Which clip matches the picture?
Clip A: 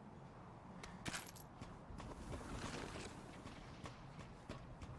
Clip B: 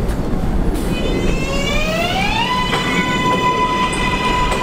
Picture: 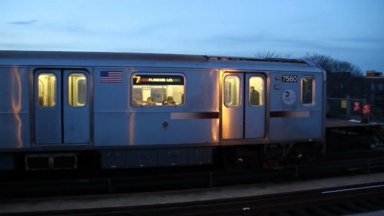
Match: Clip B